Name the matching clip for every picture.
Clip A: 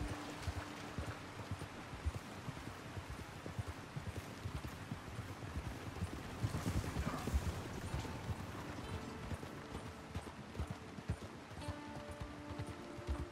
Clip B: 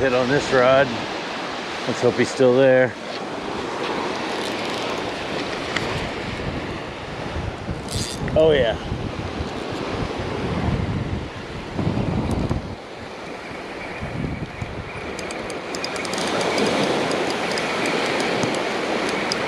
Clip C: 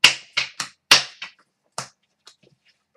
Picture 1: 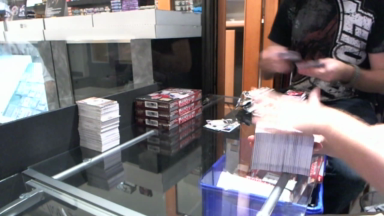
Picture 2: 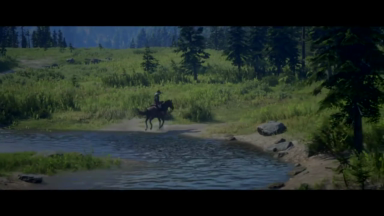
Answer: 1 C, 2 A